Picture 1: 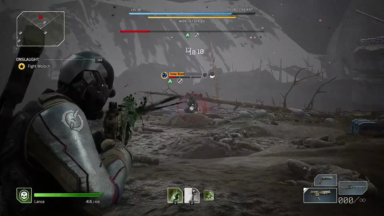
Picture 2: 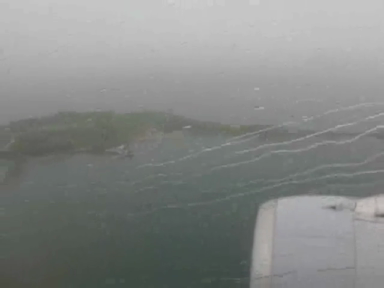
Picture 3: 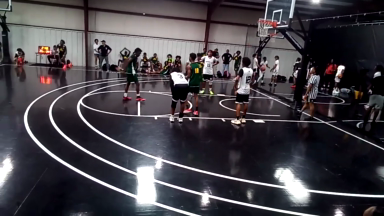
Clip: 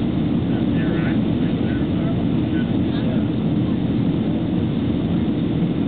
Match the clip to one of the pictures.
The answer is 2